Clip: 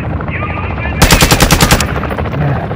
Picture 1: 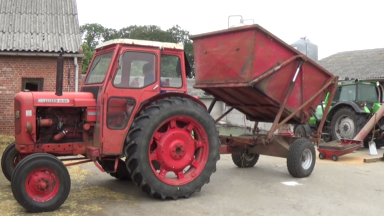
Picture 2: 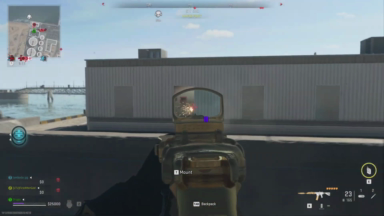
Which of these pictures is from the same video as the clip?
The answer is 2